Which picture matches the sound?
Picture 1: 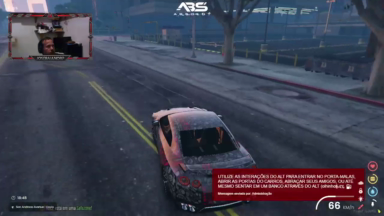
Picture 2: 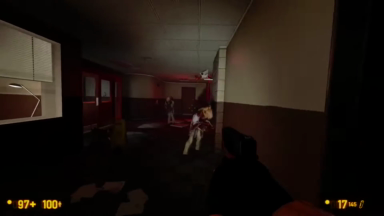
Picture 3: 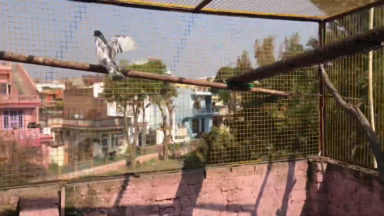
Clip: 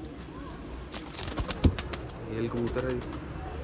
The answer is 3